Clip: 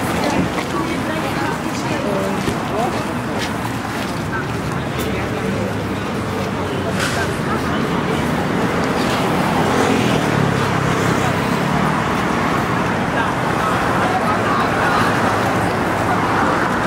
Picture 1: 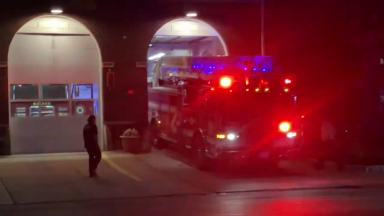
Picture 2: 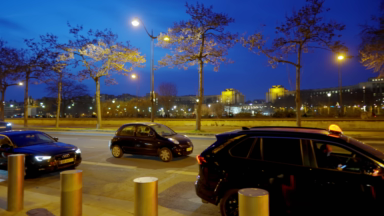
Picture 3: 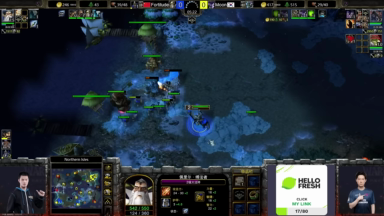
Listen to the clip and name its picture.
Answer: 2